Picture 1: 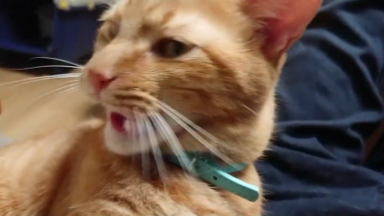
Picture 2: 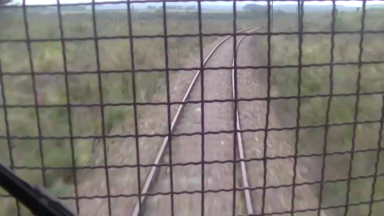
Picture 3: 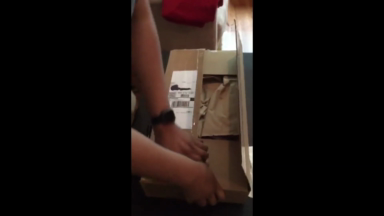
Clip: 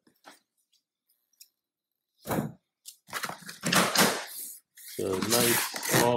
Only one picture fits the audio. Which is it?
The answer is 3